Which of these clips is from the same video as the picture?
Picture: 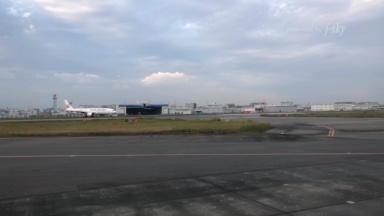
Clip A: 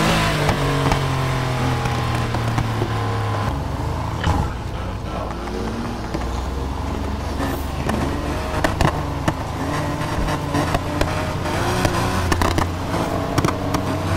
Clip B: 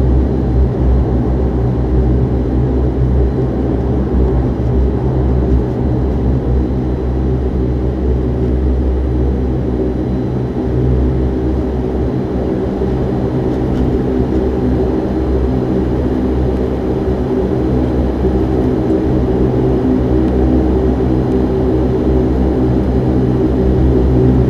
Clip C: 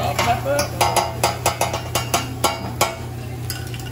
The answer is B